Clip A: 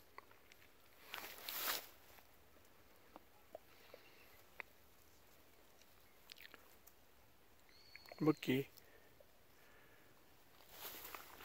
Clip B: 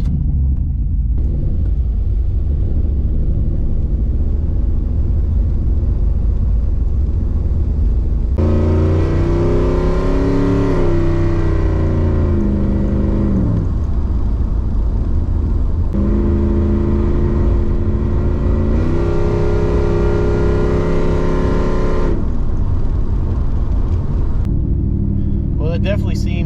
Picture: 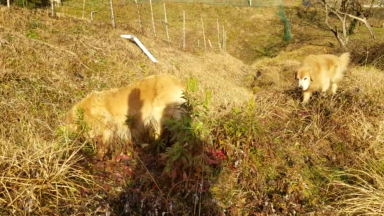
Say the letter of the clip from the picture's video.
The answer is A